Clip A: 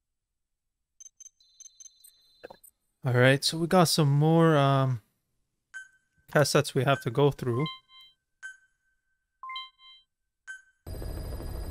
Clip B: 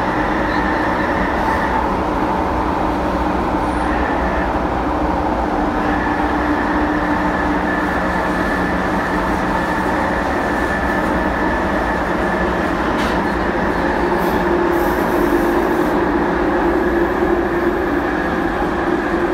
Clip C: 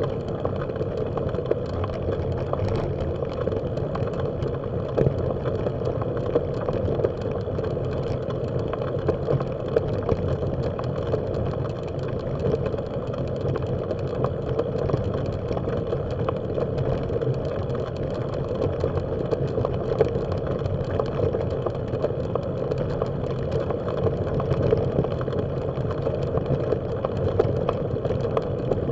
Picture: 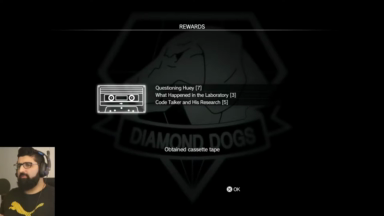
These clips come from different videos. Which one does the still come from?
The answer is A